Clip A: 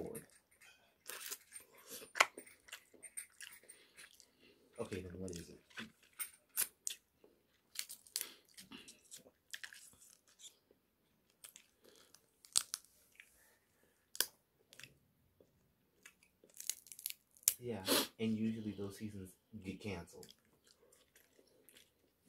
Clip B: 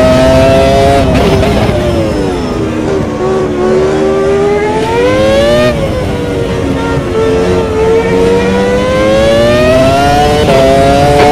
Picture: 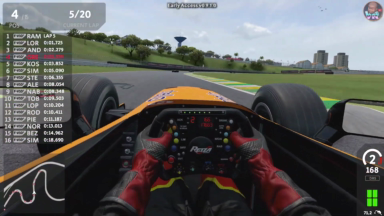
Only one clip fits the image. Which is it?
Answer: B